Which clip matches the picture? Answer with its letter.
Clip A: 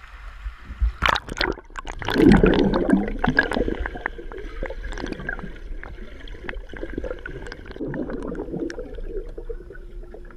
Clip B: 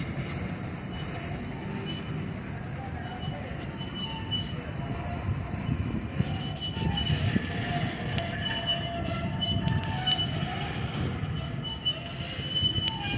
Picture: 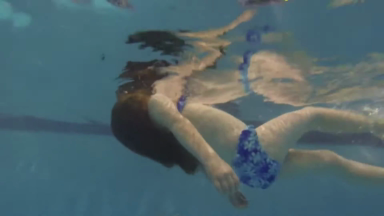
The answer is A